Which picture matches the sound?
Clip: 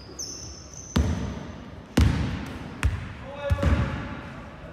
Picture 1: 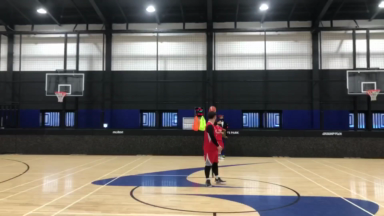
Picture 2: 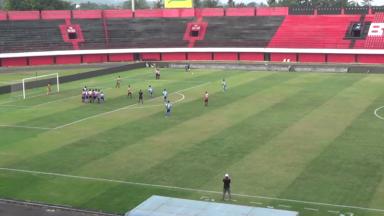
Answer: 1